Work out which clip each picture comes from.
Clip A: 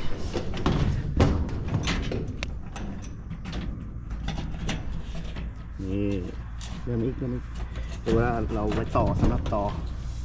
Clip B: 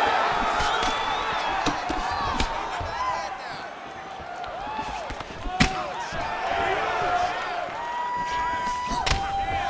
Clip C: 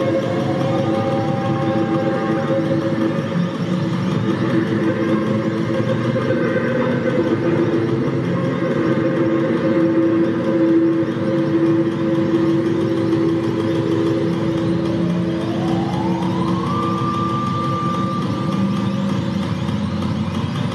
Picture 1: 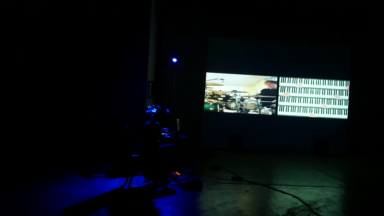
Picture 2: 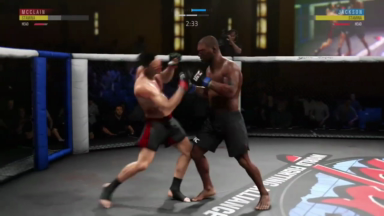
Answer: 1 C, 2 B